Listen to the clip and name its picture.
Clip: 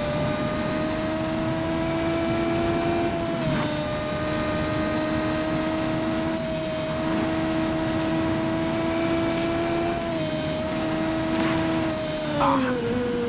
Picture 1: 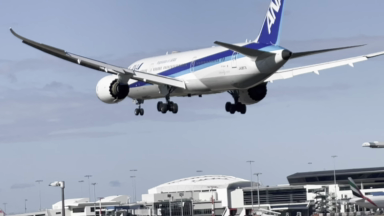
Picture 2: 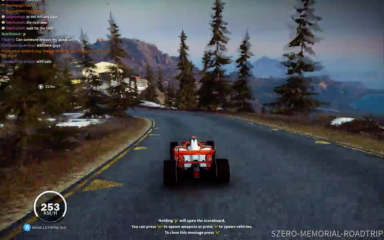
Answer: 2